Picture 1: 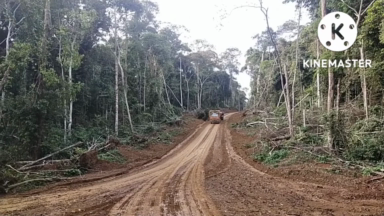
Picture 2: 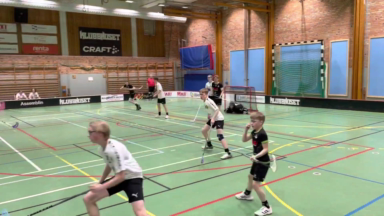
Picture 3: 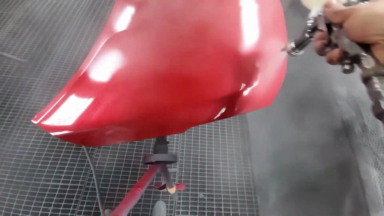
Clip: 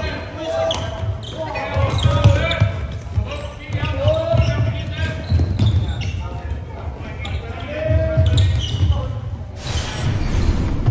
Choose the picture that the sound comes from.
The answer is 2